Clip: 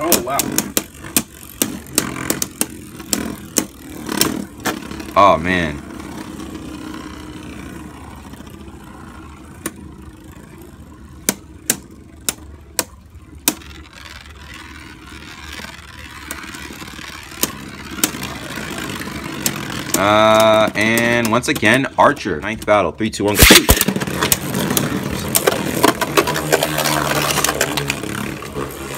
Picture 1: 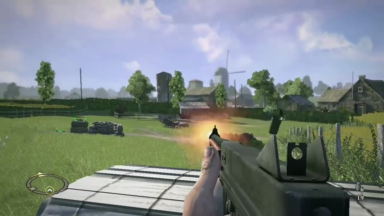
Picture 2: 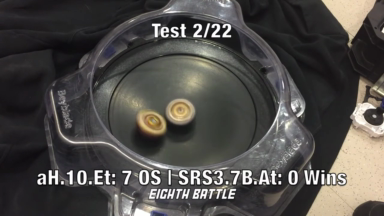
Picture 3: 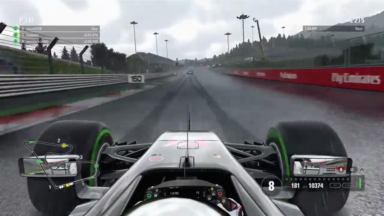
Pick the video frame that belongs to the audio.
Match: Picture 2